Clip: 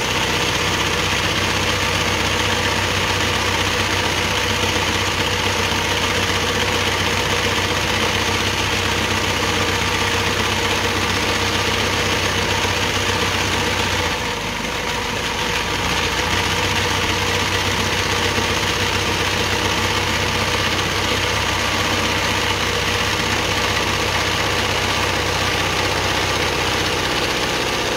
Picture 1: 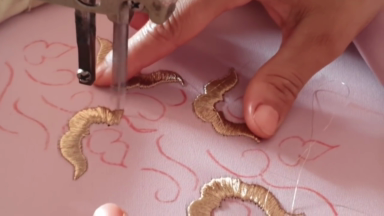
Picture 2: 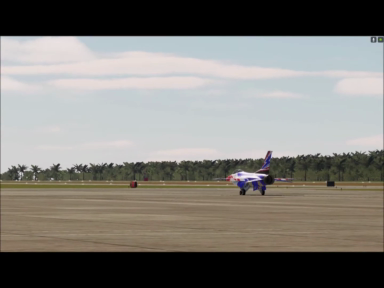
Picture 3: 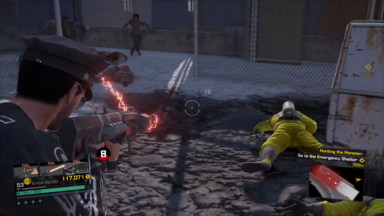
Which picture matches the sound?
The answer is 1